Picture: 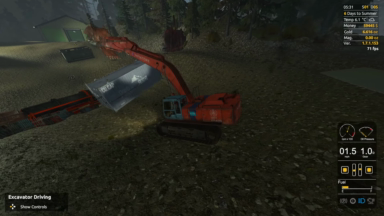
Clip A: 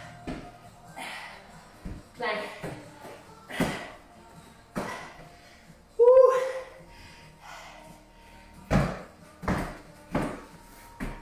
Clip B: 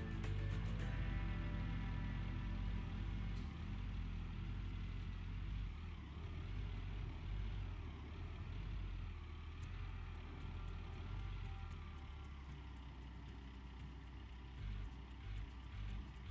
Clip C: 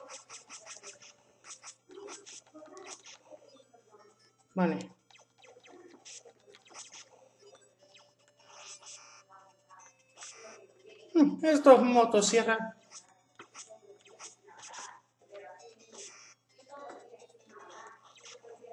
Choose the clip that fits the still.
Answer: B